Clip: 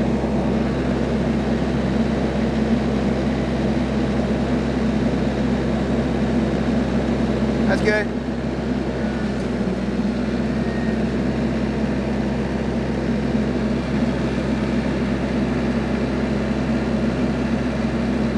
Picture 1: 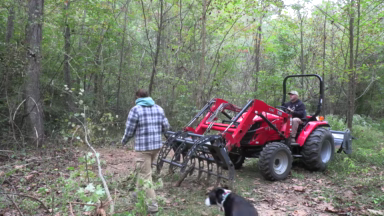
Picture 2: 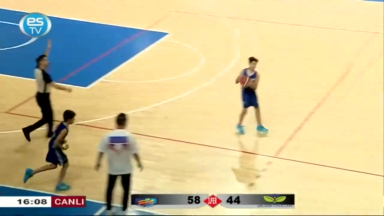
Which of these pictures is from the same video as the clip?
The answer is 1